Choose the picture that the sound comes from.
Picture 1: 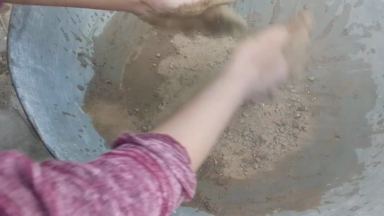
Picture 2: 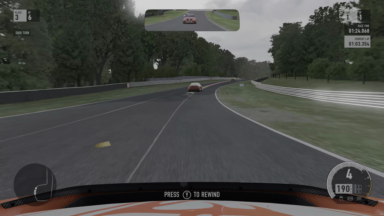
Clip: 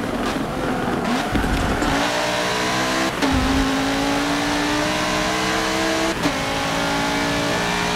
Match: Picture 2